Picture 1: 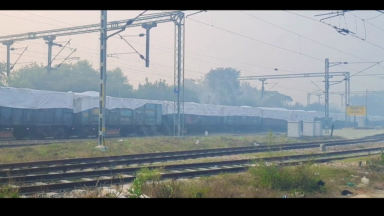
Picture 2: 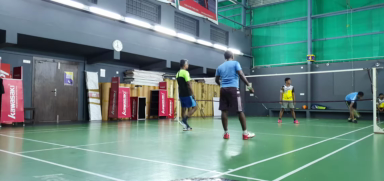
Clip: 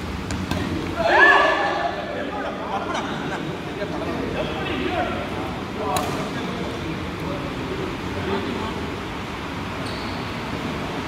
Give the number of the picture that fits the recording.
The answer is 2